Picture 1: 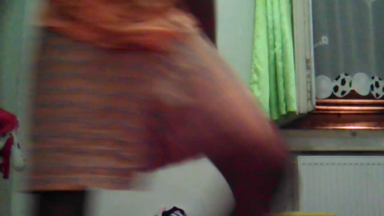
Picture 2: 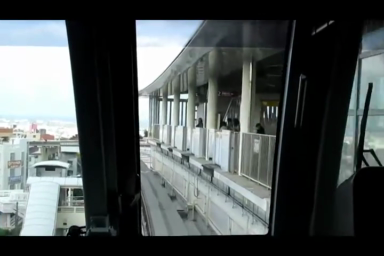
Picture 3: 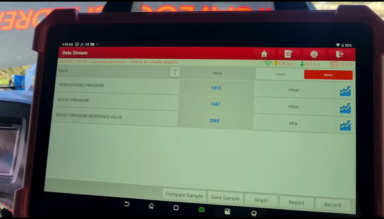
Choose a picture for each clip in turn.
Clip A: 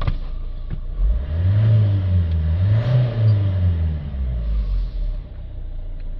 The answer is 3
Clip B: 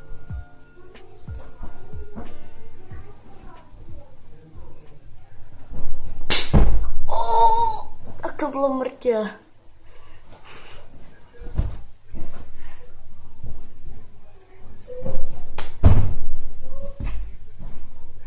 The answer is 1